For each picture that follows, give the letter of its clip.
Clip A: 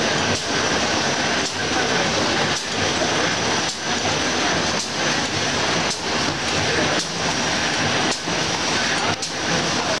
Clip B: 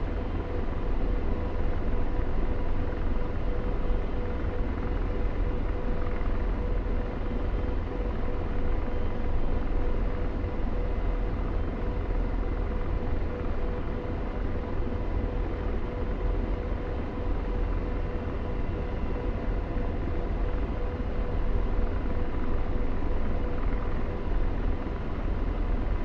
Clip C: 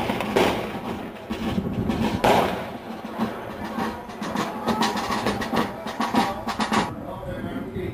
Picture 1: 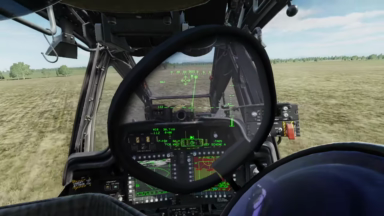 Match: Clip B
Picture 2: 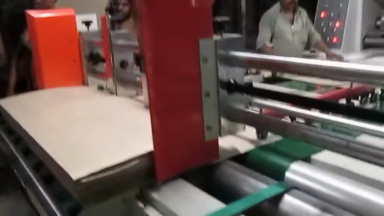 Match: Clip A